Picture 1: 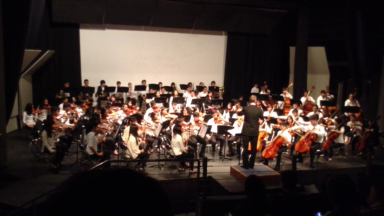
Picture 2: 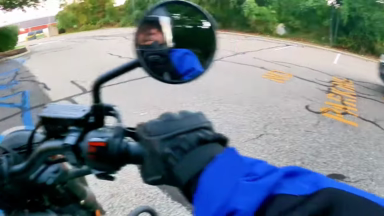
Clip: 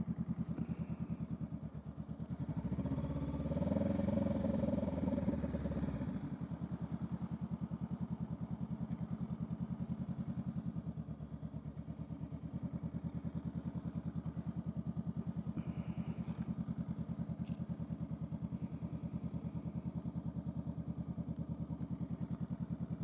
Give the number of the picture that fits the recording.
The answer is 2